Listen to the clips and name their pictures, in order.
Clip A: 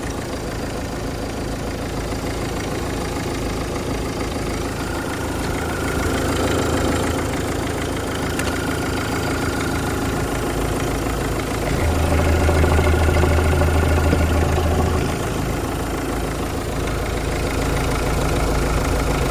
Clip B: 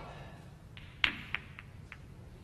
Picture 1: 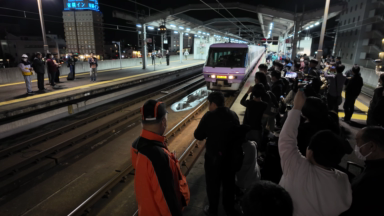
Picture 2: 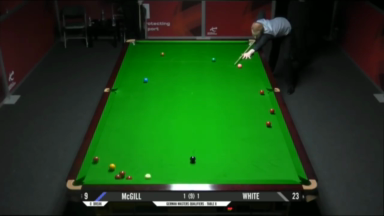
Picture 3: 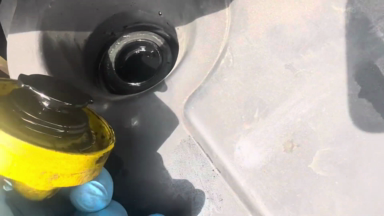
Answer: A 3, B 2